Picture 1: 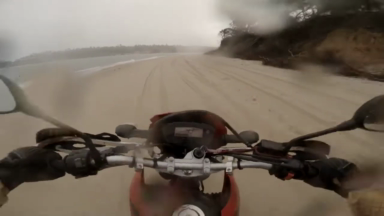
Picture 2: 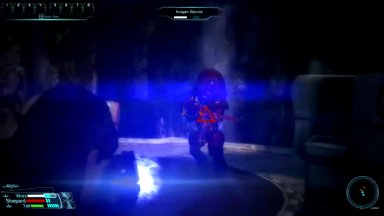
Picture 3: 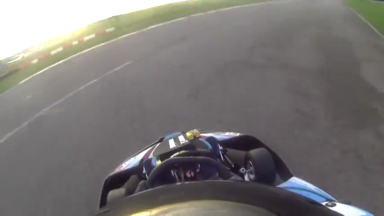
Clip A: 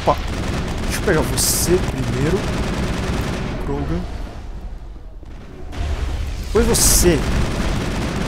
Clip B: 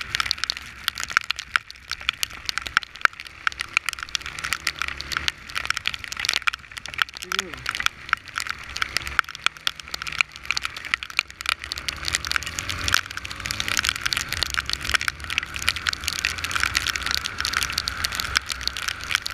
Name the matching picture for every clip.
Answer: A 2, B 1